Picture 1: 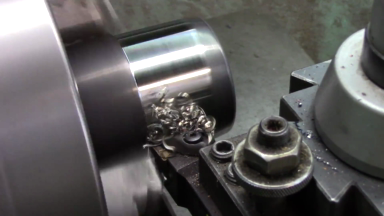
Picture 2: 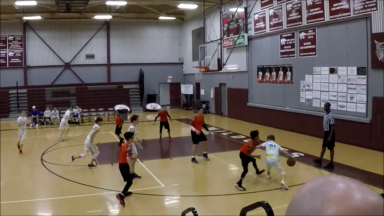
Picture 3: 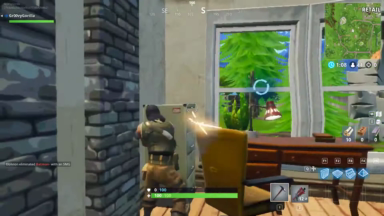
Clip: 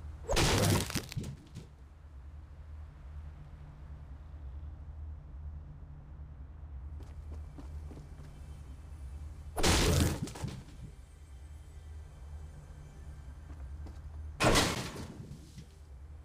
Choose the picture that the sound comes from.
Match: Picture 3